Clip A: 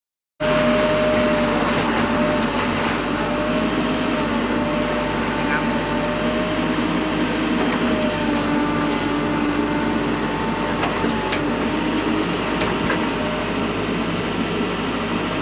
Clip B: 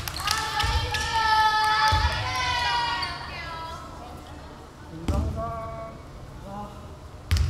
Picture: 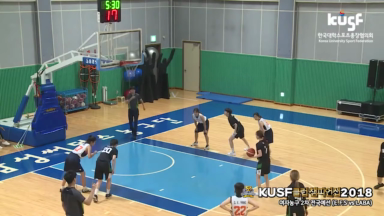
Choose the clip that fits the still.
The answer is B